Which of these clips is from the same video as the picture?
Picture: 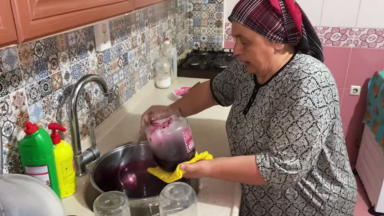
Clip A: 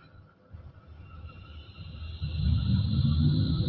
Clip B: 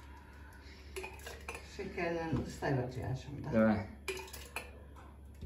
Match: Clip B